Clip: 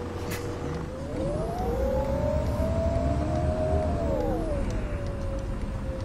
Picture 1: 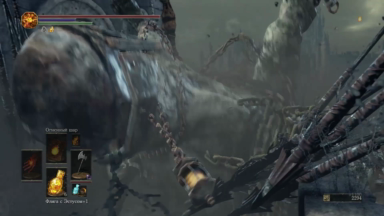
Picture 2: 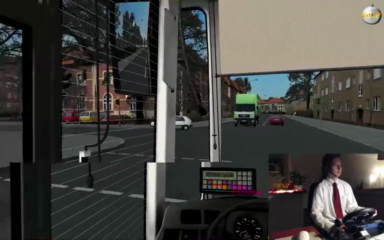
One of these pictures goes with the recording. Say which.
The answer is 2